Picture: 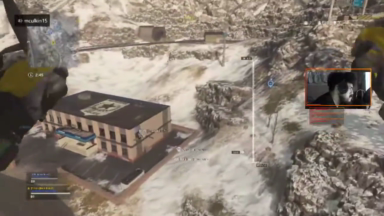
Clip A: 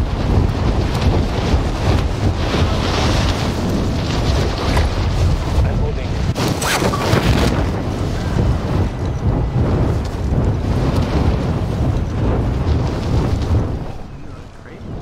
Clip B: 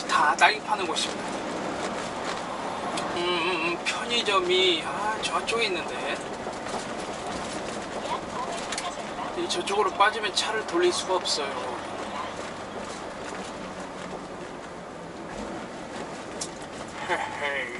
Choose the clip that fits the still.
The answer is A